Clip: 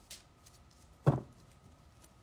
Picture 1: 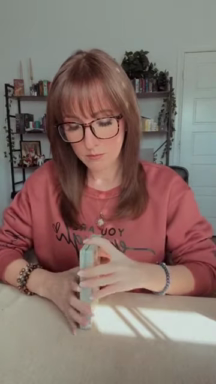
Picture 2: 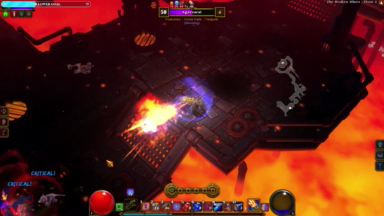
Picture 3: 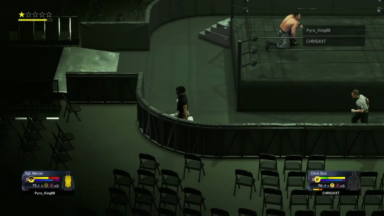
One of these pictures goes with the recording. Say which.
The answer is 1